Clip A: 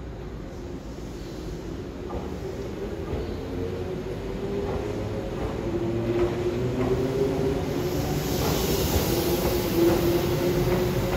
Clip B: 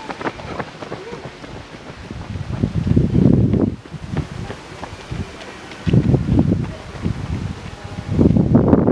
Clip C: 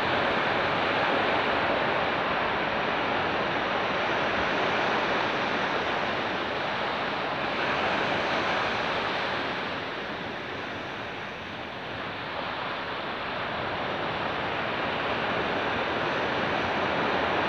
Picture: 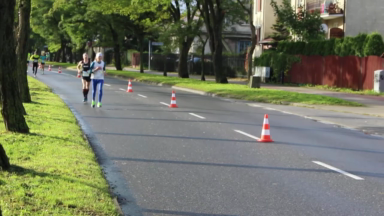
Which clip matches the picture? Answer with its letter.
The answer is B